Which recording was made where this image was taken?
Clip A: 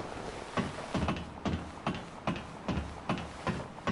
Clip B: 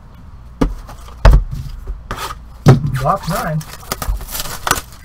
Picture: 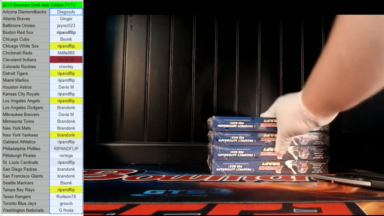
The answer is B